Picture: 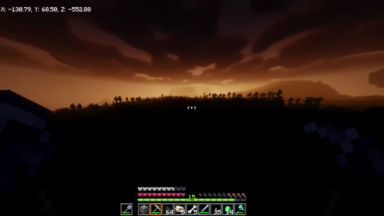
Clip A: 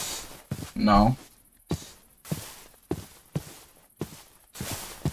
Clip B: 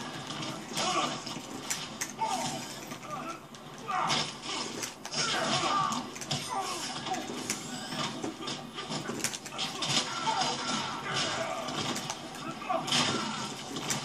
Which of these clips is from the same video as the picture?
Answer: A